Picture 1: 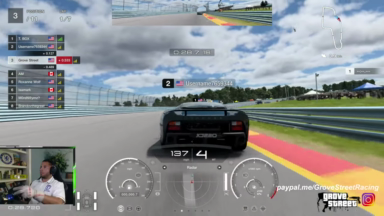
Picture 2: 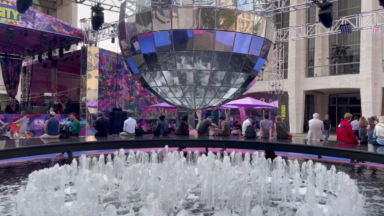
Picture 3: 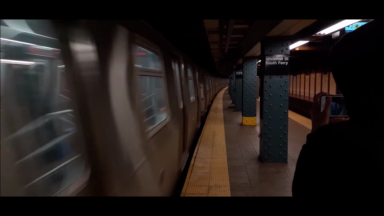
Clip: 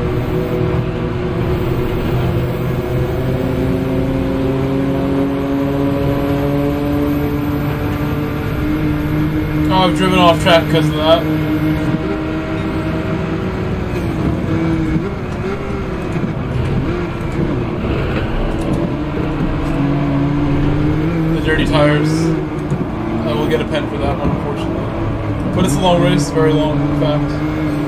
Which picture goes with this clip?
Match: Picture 1